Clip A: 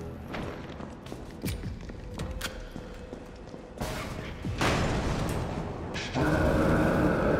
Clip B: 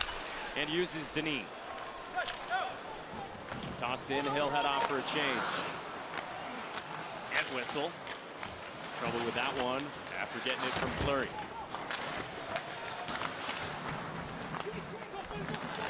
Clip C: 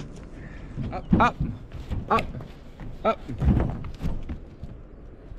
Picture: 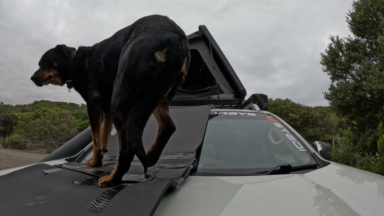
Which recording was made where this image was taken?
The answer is C